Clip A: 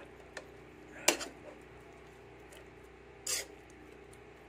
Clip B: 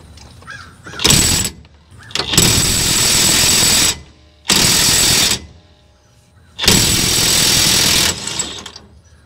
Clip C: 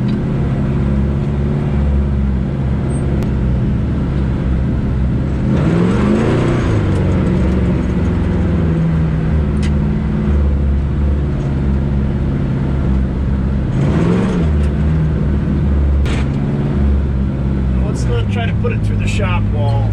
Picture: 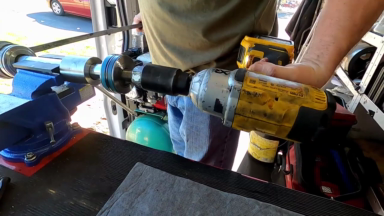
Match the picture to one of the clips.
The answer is B